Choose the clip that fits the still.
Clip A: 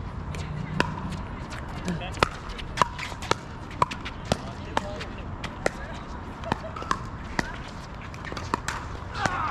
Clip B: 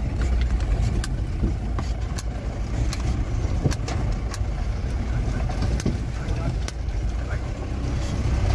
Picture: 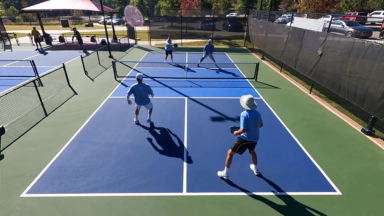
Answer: A